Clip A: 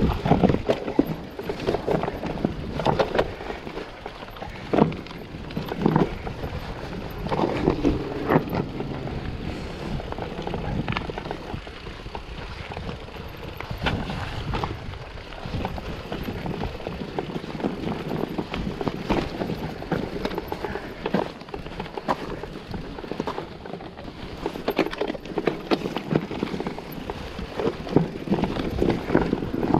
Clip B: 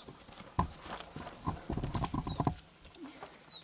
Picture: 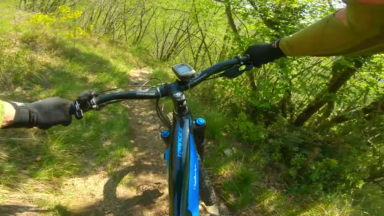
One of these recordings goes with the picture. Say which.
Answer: A